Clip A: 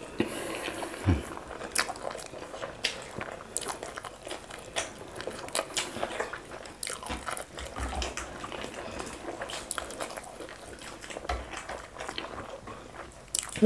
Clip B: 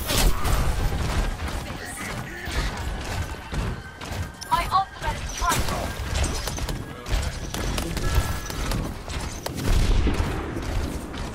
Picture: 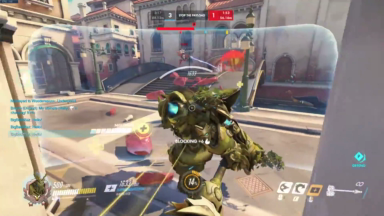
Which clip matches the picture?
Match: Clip B